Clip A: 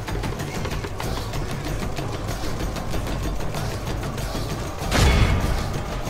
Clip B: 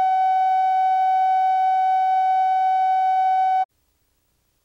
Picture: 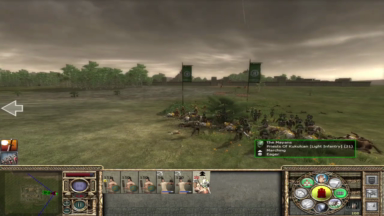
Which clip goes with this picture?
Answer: A